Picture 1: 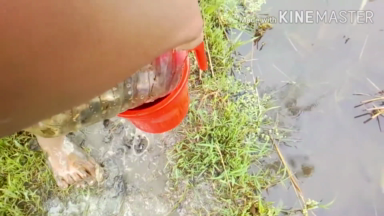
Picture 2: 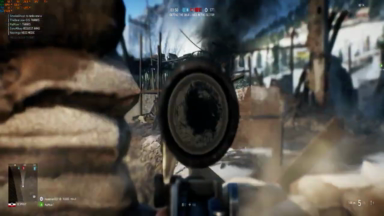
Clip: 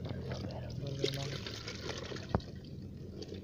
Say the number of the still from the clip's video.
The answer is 1